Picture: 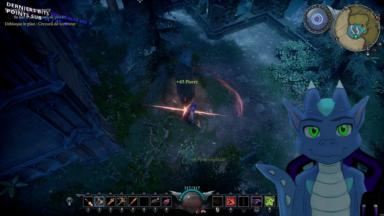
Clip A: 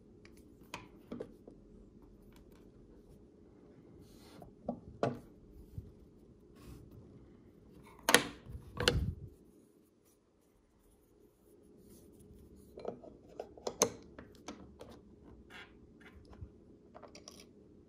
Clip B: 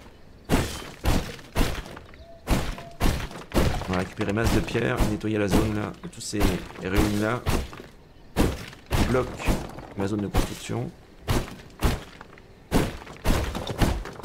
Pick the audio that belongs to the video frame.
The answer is B